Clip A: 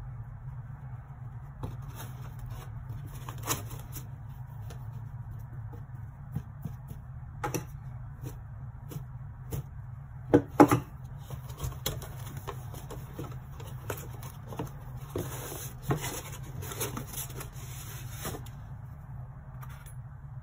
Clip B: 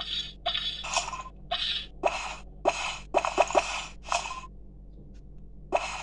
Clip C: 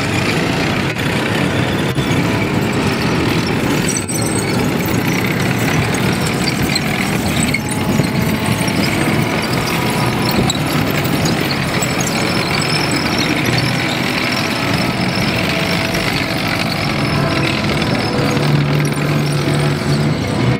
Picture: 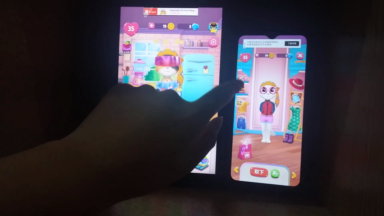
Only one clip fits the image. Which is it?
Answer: B